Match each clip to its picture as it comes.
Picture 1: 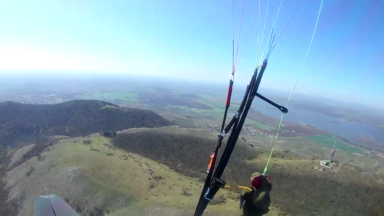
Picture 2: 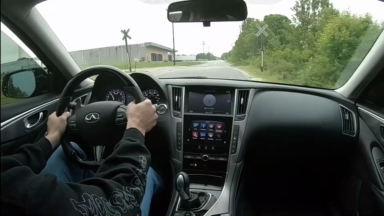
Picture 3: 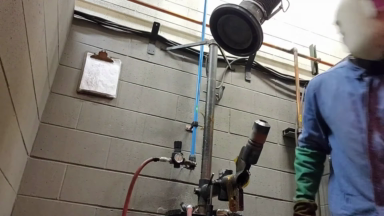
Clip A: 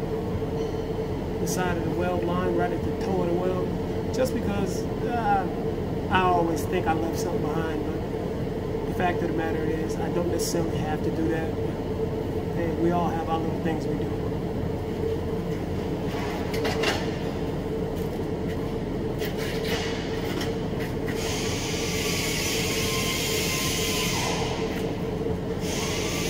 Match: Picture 3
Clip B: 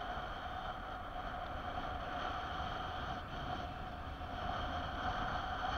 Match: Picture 1